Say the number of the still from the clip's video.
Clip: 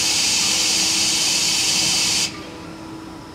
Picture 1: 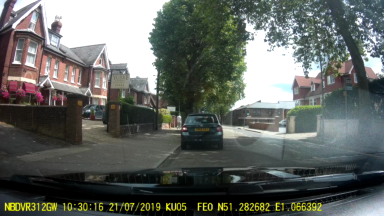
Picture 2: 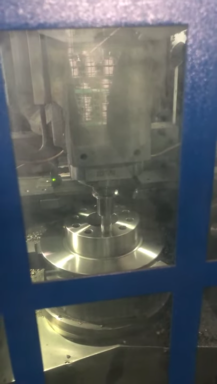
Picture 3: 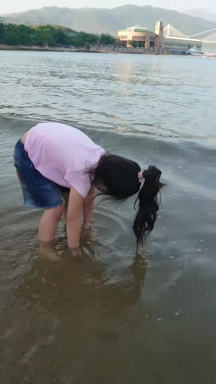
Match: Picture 2